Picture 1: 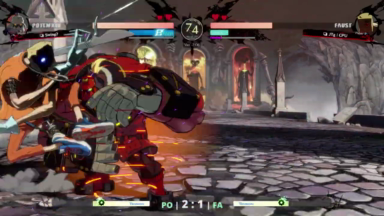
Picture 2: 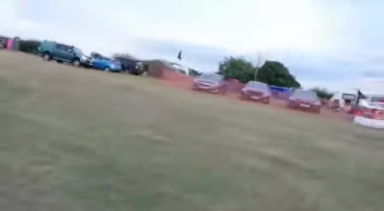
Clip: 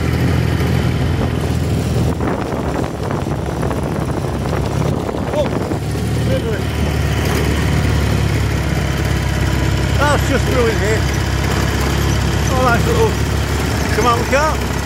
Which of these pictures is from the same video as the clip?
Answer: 2